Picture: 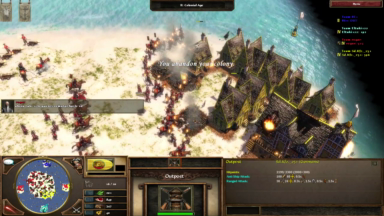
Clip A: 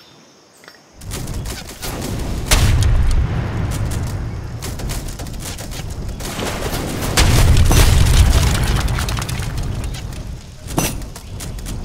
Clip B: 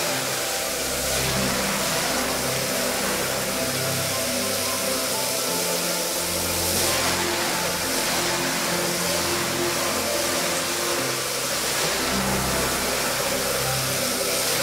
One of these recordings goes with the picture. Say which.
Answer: A